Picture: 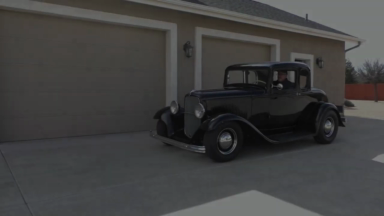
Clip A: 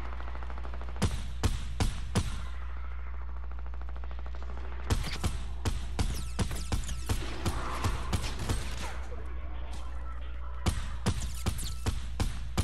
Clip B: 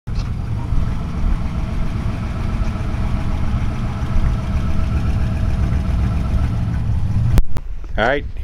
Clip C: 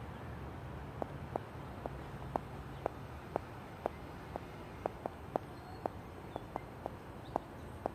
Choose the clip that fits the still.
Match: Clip B